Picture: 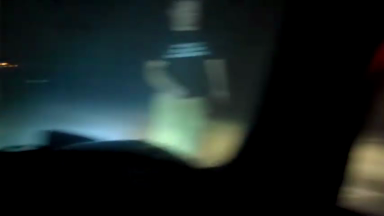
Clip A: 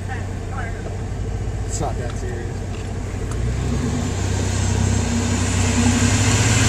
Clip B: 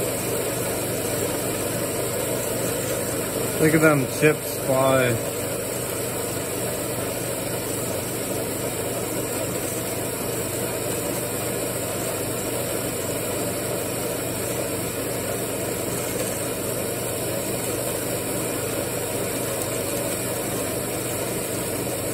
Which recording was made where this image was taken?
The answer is A